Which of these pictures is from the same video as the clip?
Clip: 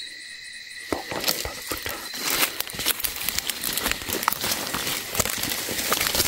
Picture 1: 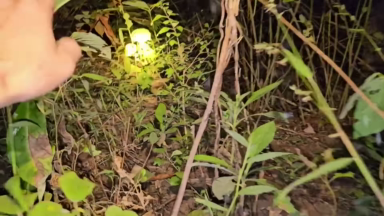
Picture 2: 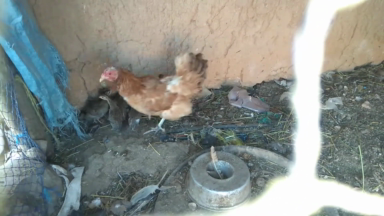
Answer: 1